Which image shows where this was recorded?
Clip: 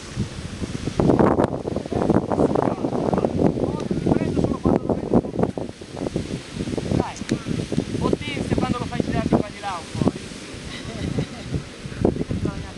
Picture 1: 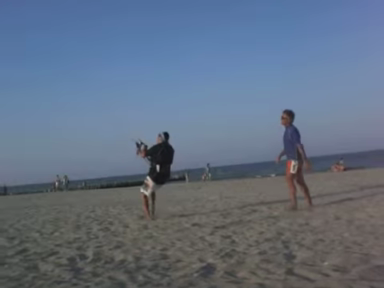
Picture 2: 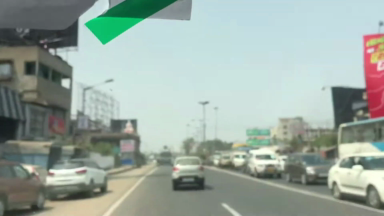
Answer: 1